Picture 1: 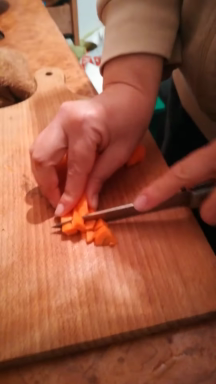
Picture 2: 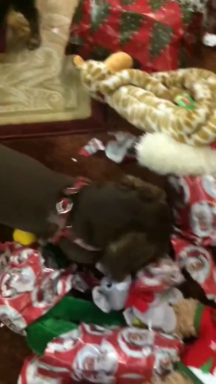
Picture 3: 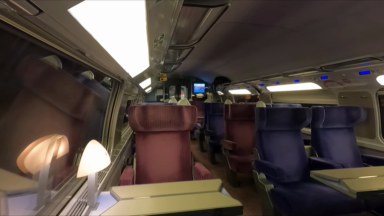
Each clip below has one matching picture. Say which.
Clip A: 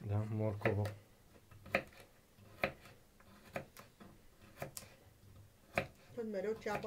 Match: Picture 1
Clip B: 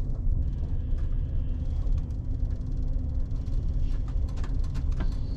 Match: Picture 3